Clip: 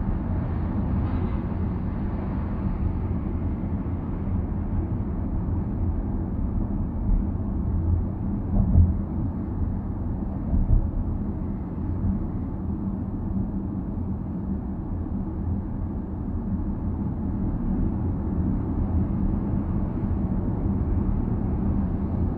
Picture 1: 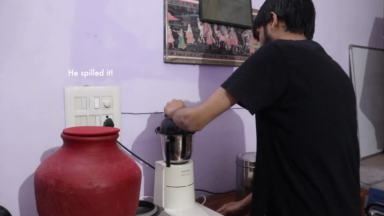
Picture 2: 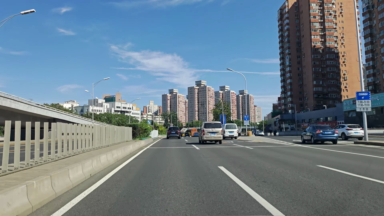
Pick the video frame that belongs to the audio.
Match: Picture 2